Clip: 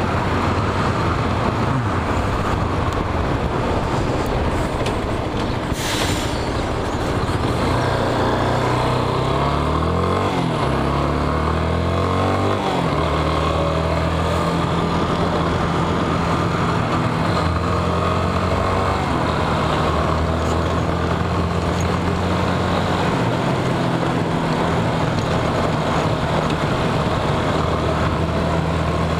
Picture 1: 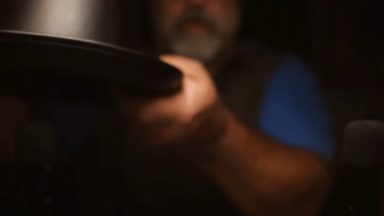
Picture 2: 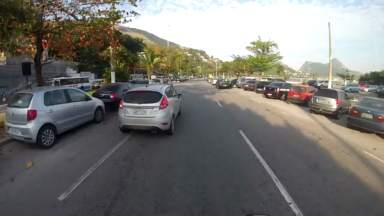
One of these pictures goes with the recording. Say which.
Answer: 2